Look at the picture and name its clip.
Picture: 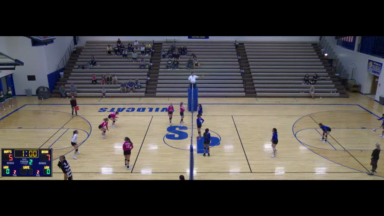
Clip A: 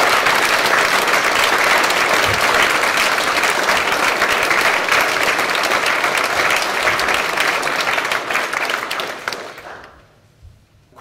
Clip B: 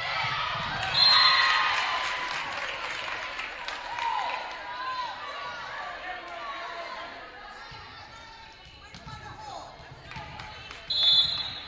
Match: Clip B